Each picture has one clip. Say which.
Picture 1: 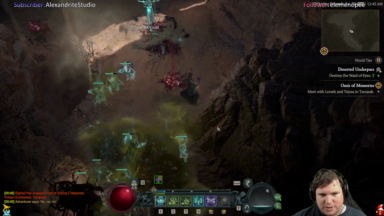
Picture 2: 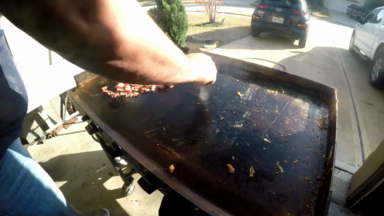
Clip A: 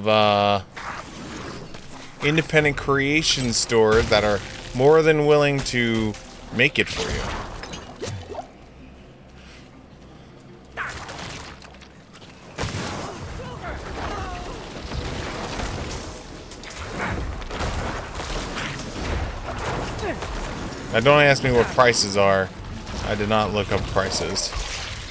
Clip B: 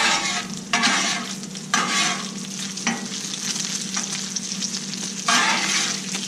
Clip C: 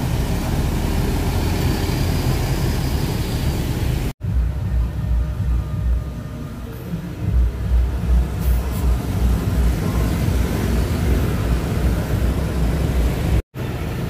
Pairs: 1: A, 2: B